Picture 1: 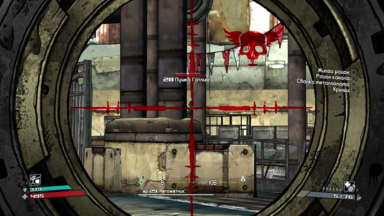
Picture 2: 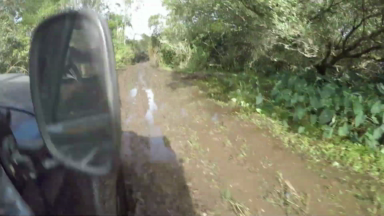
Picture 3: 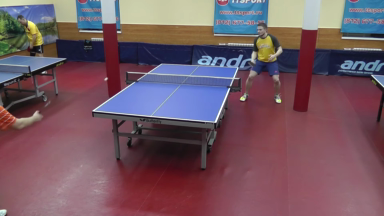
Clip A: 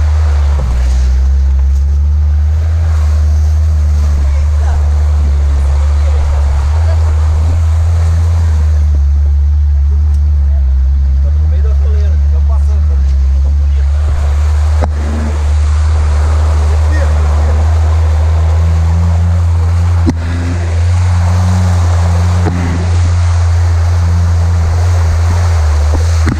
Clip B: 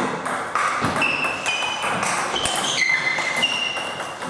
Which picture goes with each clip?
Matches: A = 2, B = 3